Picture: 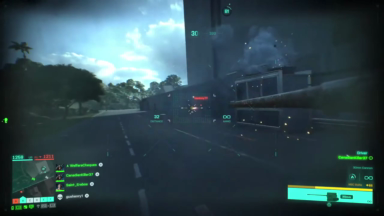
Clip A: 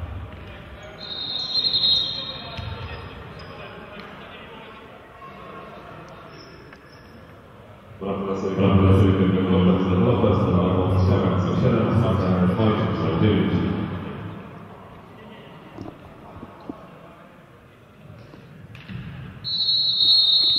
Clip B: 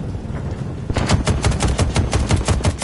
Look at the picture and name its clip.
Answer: B